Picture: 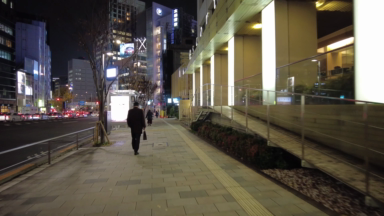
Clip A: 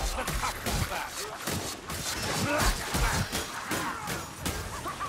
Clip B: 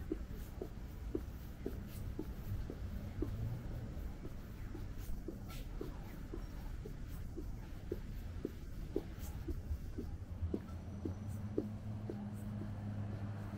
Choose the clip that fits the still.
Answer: B